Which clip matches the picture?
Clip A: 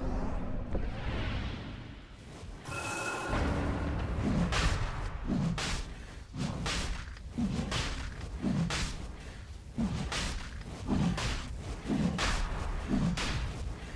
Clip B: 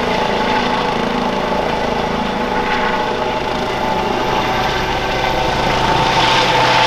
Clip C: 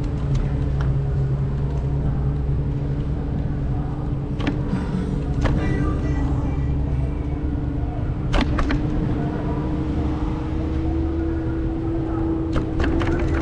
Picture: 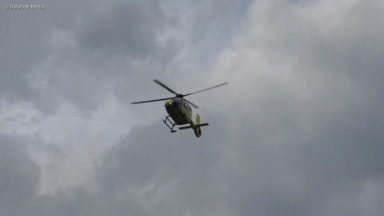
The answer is B